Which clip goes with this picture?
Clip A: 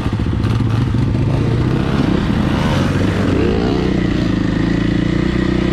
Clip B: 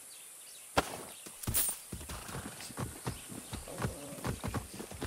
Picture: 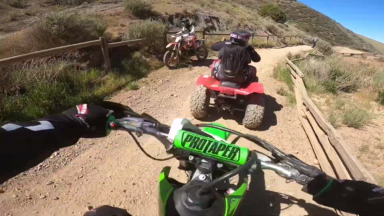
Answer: A